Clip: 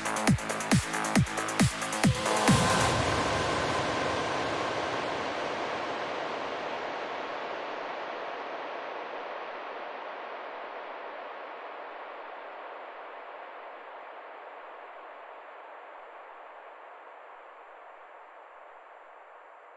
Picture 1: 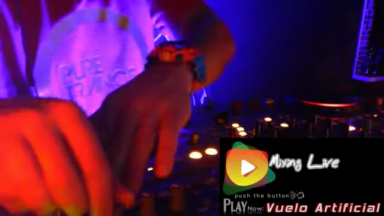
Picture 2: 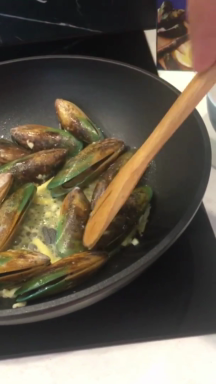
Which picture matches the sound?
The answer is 1